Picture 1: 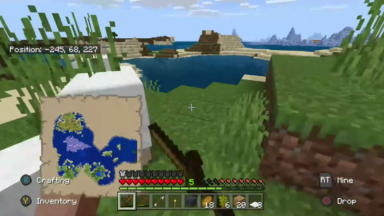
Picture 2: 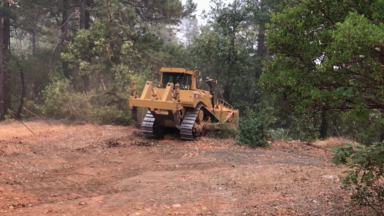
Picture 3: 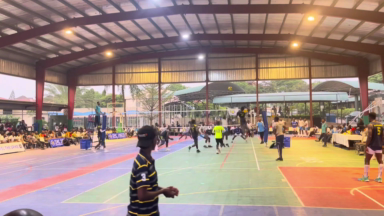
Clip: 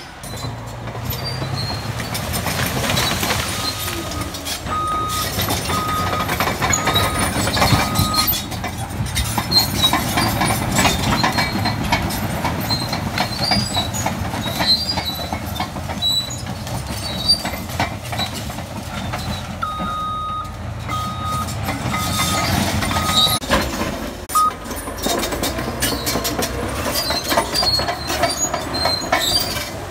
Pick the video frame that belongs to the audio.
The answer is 2